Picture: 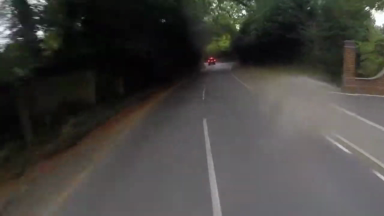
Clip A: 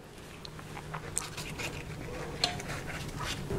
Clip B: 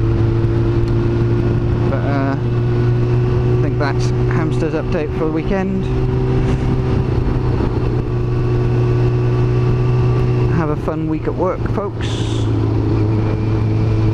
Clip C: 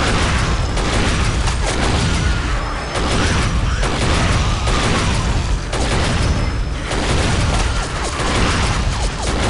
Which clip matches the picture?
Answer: B